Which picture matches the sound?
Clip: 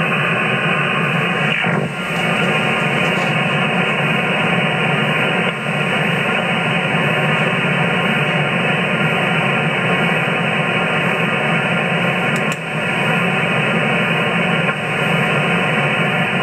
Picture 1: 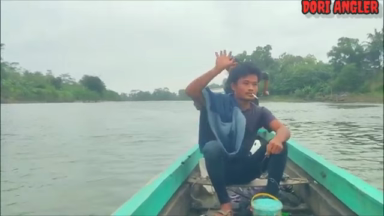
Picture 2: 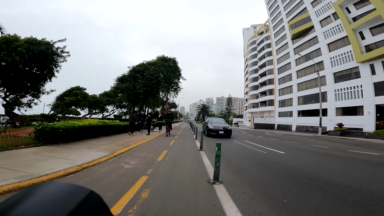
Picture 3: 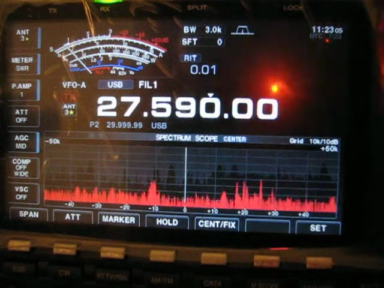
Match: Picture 3